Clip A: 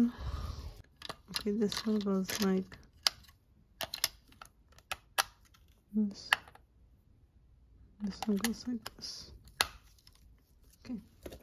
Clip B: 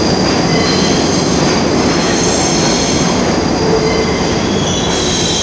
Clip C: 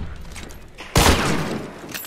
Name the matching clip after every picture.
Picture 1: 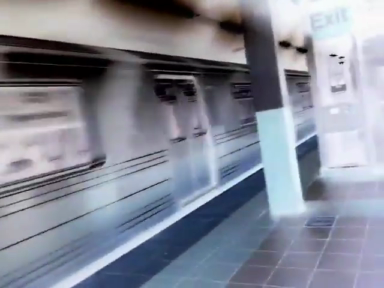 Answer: B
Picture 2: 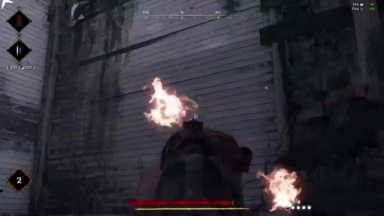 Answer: C